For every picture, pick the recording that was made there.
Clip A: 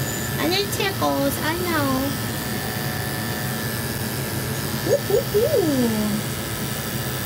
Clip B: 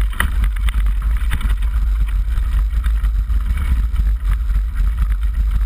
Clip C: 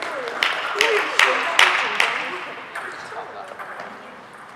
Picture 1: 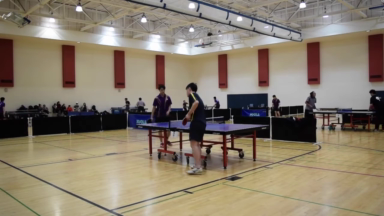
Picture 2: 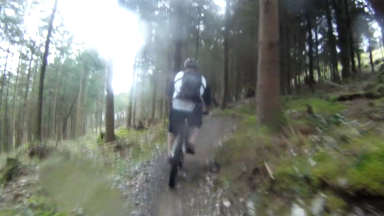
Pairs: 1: C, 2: B